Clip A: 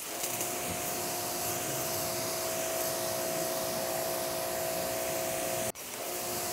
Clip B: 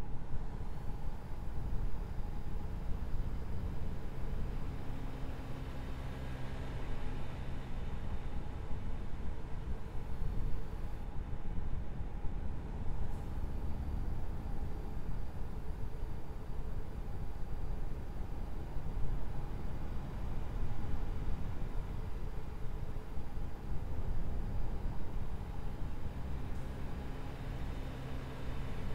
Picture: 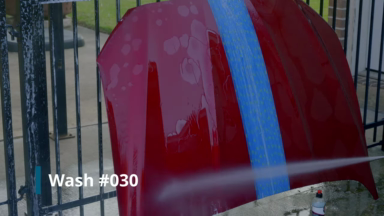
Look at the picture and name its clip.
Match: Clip A